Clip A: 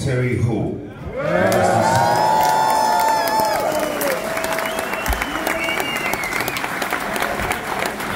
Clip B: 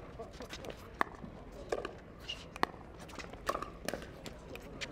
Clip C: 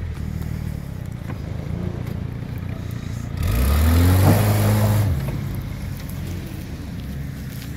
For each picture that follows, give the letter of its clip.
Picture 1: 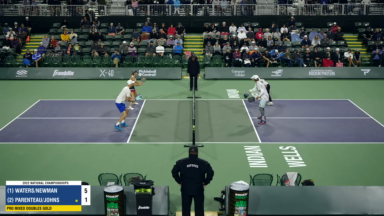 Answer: B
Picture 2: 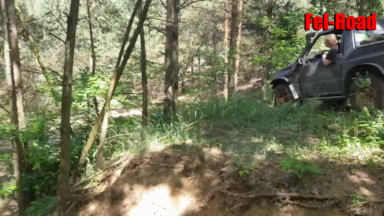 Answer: C